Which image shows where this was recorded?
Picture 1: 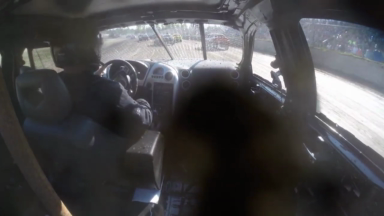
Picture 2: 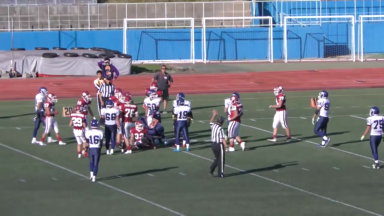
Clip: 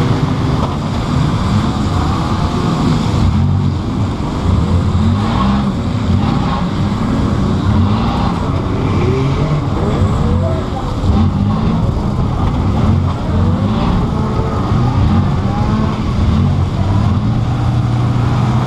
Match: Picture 1